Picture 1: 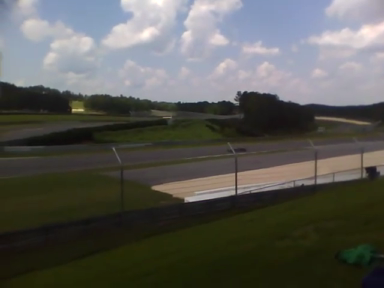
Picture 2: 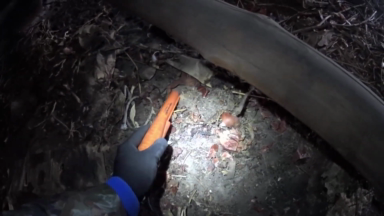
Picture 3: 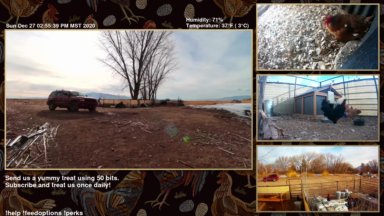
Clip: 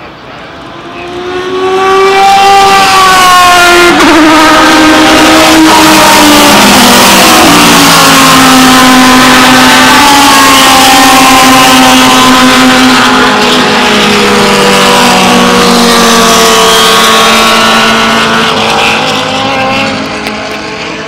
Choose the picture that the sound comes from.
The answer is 1